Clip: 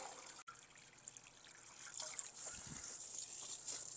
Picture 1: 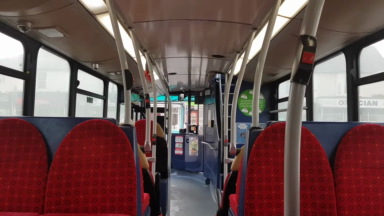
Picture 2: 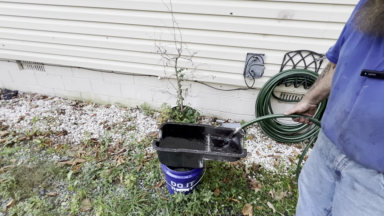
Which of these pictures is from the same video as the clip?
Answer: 2